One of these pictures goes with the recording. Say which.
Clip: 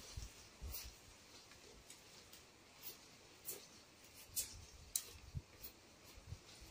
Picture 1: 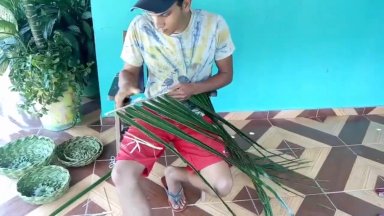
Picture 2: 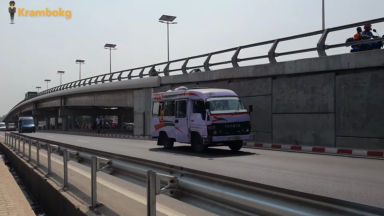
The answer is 1